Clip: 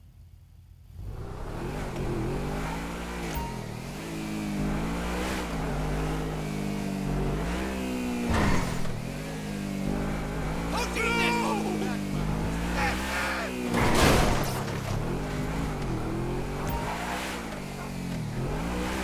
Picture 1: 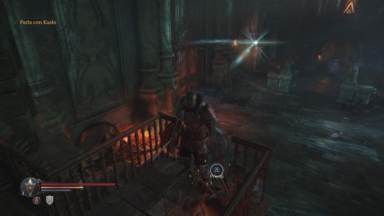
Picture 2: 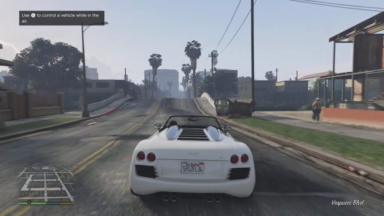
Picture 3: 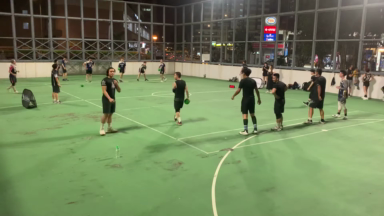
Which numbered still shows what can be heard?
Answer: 2